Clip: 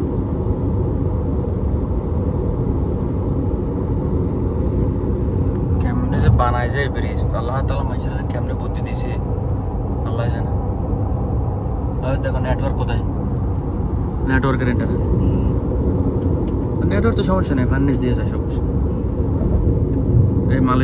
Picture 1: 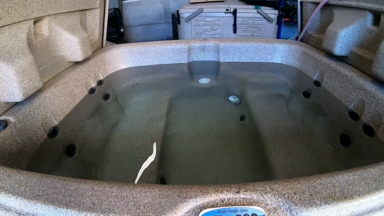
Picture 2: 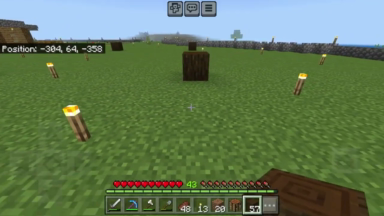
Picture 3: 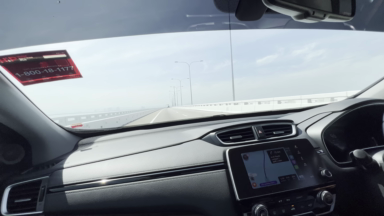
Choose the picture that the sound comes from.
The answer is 3